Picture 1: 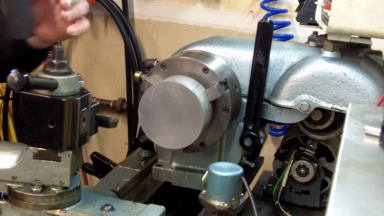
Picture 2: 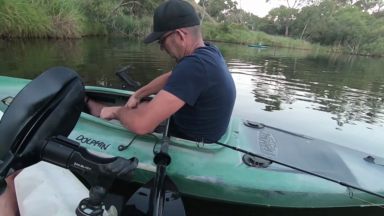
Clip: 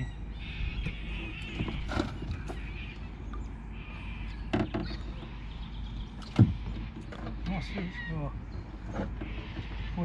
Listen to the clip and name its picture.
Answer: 2